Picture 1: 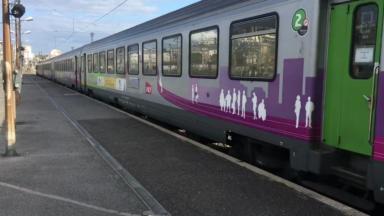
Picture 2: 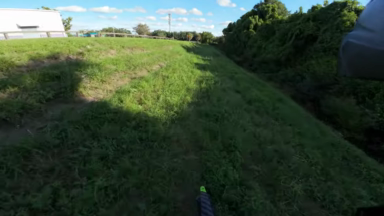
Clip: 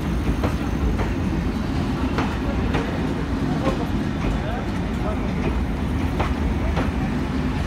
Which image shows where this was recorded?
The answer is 1